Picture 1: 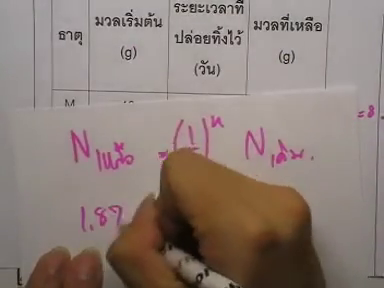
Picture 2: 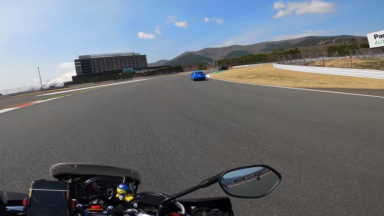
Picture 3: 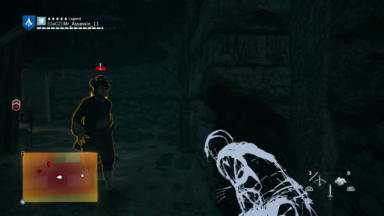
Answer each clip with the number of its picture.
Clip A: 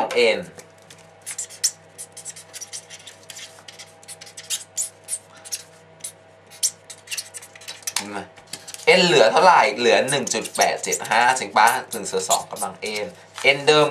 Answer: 1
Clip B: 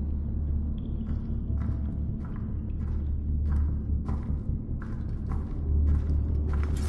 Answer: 3